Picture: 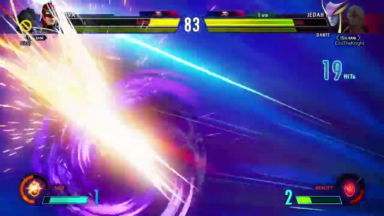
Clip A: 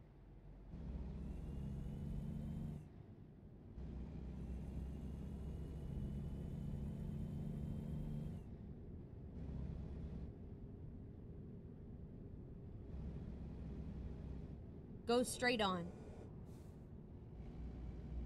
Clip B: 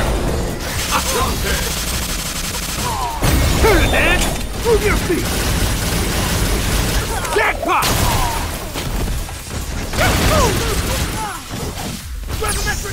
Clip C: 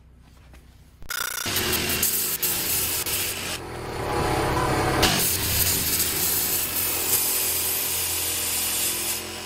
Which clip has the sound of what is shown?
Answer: B